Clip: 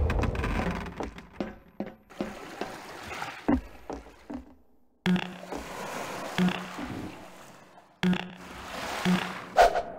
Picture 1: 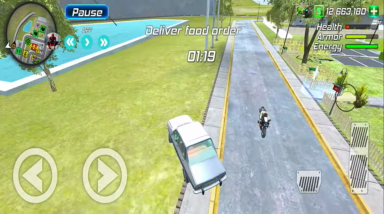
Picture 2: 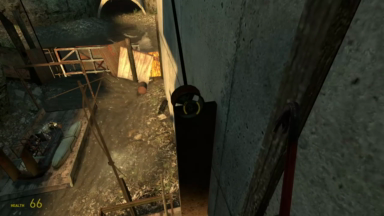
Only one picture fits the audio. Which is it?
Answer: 2